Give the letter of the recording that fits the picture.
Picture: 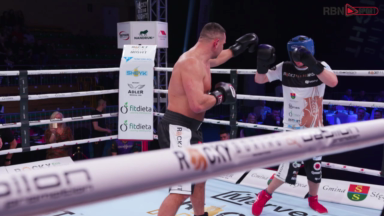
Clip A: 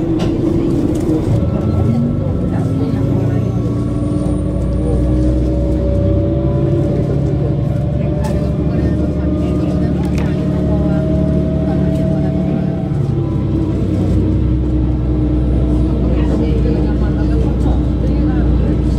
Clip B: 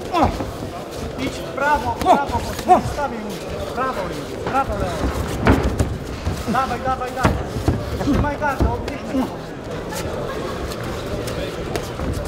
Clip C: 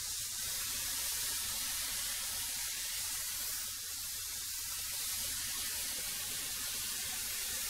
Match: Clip B